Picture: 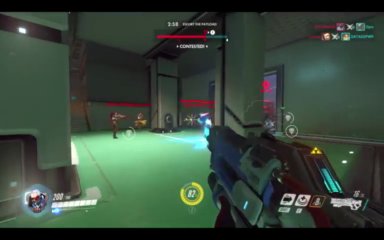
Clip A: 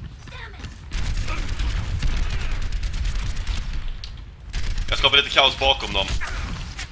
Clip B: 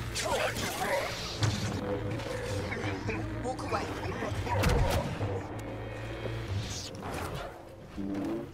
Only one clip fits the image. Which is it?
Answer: A